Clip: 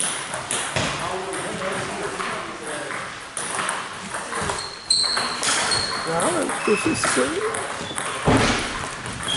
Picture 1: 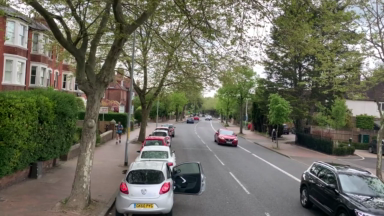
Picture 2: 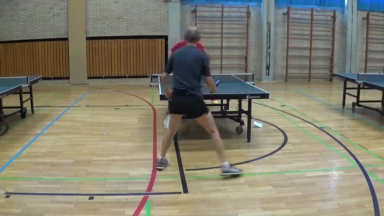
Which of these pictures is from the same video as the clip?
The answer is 2